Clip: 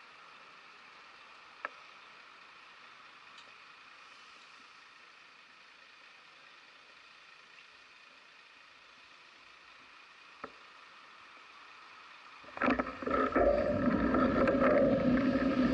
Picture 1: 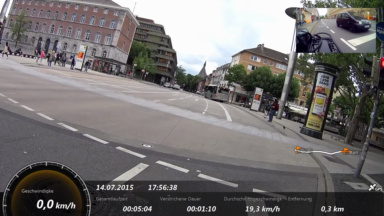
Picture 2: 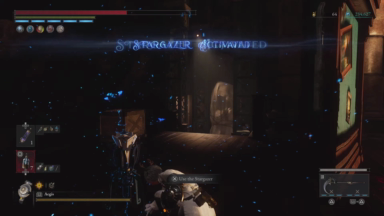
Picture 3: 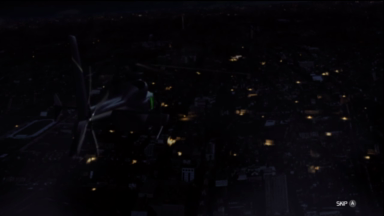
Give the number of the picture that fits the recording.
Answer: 1